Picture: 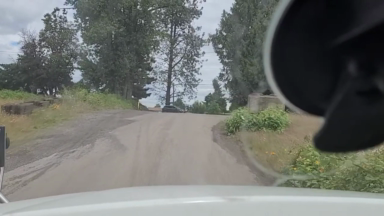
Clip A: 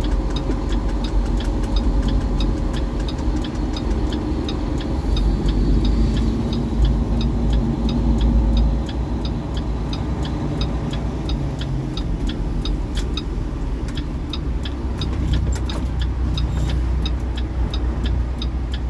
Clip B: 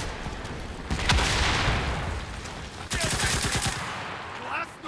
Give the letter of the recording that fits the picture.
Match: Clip A